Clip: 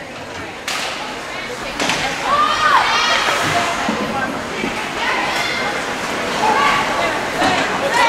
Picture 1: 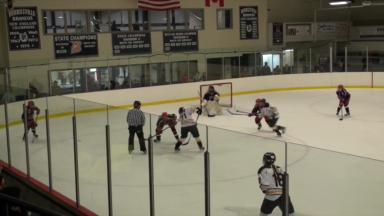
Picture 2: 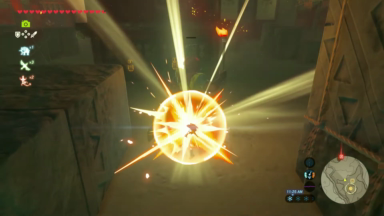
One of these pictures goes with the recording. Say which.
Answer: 1